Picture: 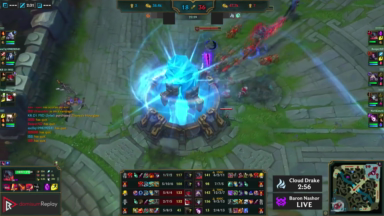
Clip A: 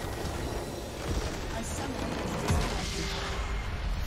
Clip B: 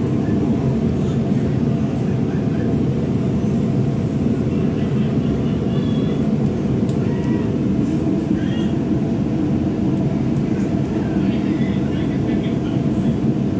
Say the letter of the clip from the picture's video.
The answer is A